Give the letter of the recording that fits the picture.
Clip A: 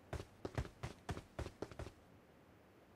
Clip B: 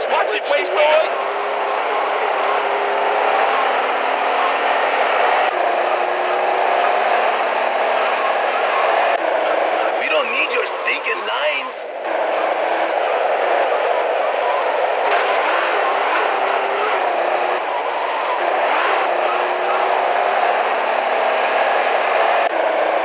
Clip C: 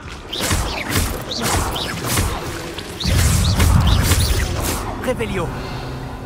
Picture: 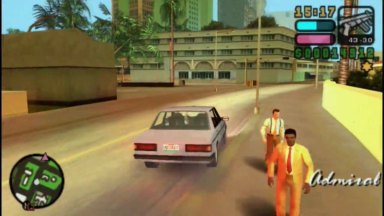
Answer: B